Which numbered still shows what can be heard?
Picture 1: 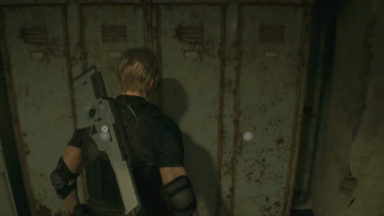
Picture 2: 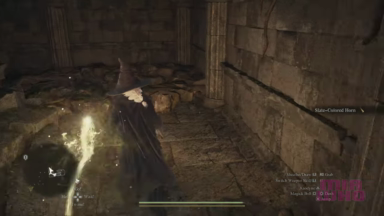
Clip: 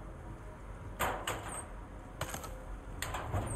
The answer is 1